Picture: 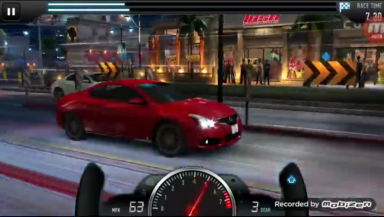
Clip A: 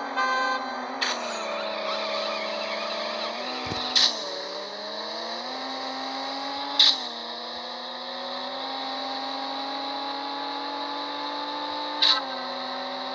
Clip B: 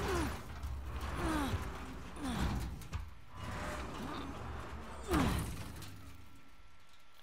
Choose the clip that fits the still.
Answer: A